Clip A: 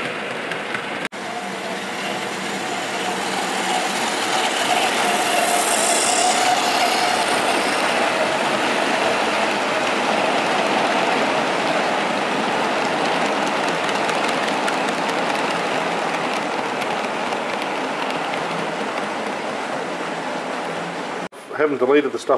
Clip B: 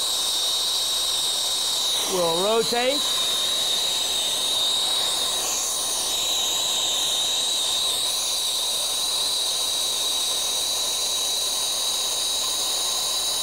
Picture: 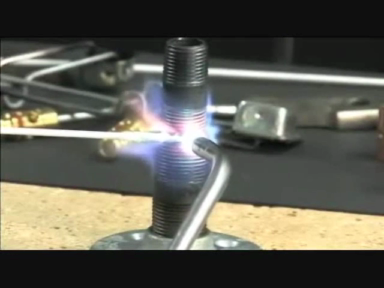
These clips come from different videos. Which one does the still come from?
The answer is B